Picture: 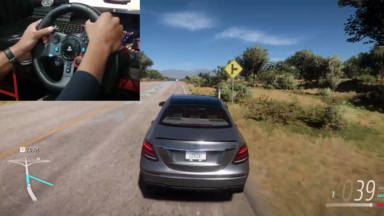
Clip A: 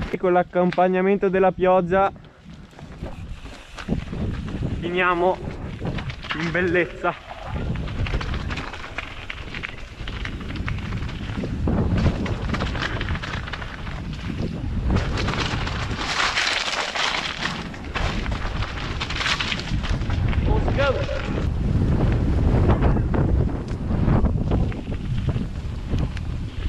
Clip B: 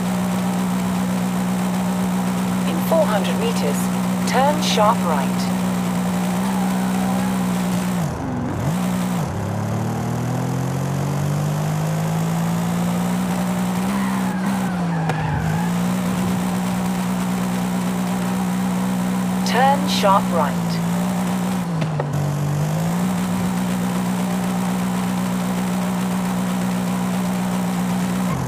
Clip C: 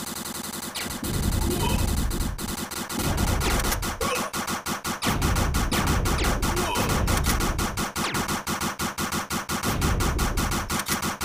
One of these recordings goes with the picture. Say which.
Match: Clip B